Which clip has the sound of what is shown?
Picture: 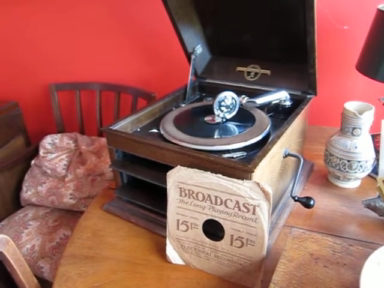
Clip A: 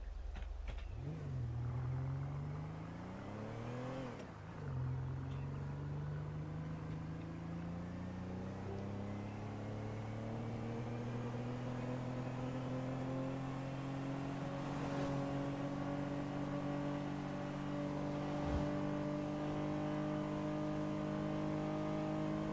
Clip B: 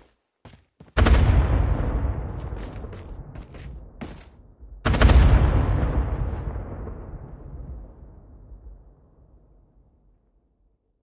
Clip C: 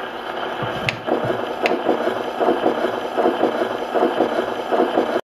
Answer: C